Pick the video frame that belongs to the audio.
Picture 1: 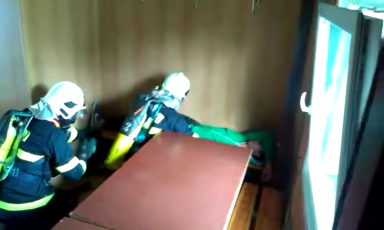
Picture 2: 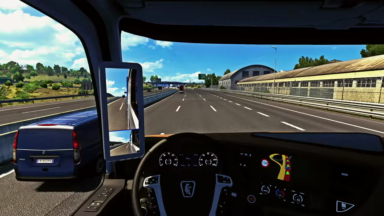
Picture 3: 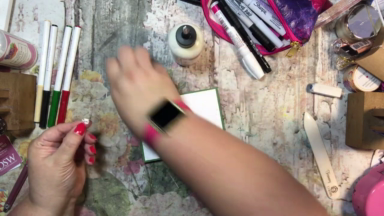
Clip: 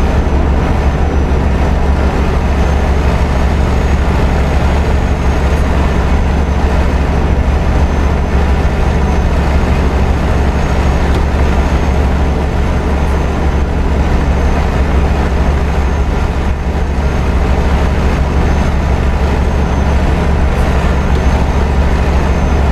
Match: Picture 2